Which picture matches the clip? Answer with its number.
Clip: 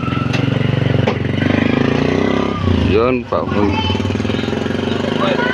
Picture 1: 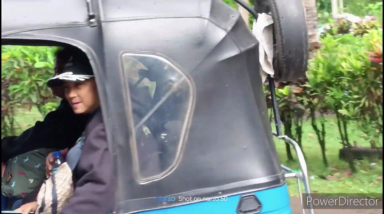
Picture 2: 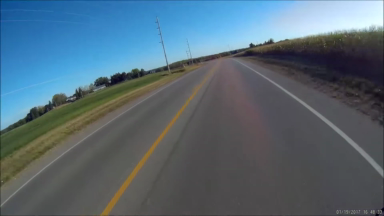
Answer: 1